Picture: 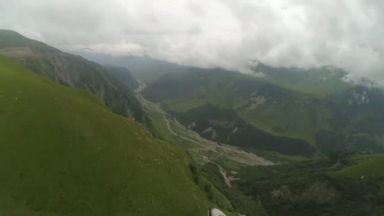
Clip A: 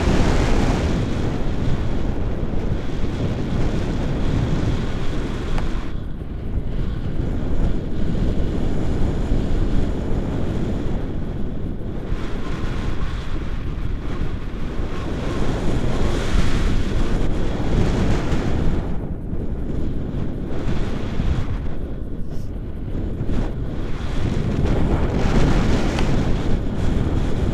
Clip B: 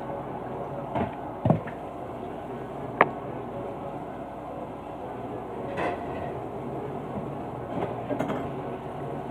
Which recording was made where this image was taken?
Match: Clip A